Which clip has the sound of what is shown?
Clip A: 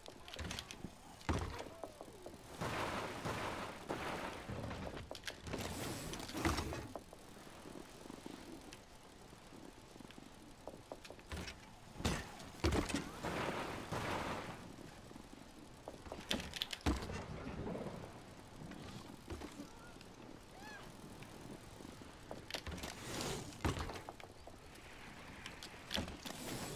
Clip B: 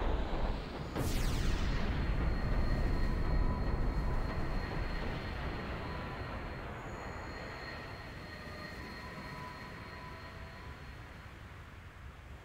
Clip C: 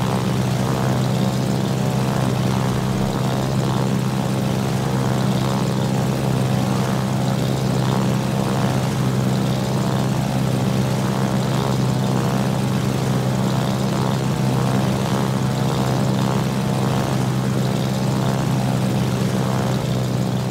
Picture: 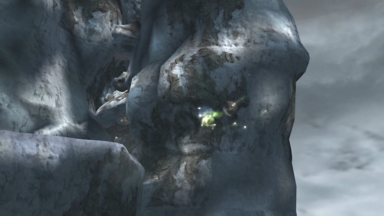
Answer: B